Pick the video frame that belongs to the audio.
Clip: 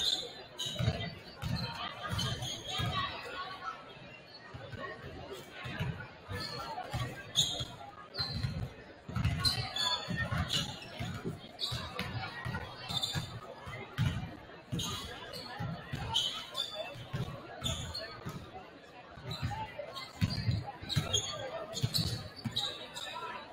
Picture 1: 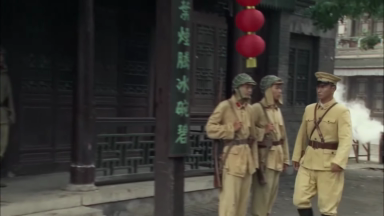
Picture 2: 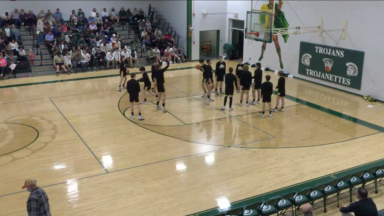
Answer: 2